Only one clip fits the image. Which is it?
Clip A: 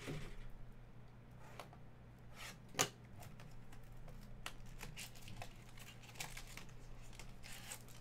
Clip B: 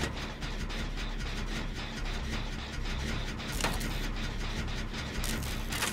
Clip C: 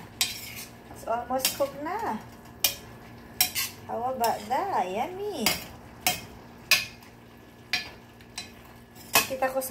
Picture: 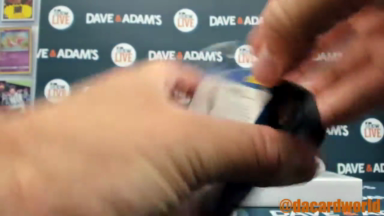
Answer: A